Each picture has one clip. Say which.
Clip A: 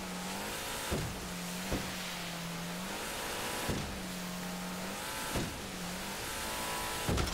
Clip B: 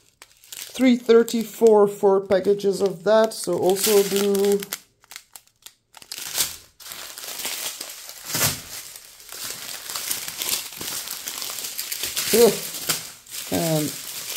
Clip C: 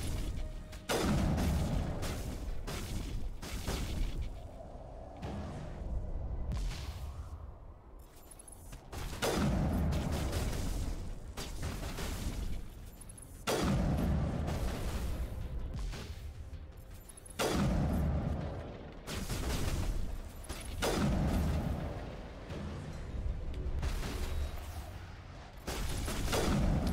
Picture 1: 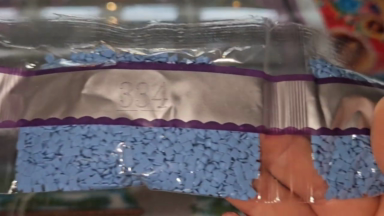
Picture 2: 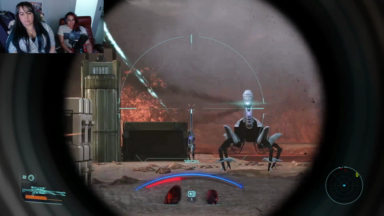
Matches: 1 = B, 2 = C